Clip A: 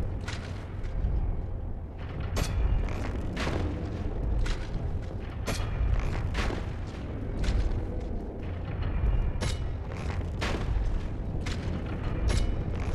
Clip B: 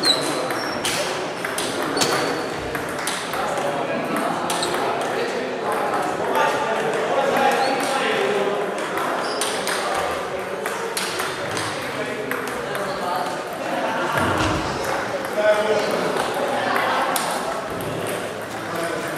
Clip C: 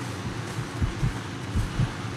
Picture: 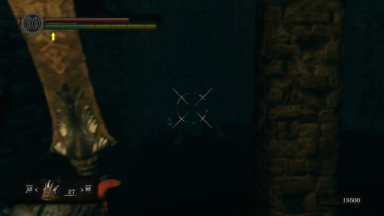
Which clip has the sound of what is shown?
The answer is A